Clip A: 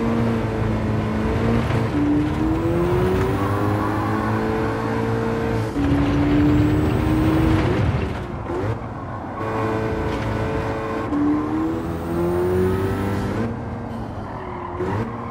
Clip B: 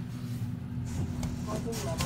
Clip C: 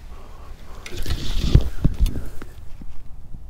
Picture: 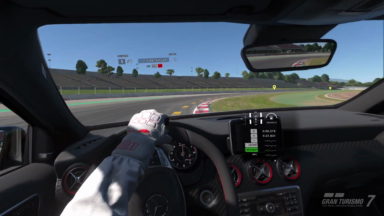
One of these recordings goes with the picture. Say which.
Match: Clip A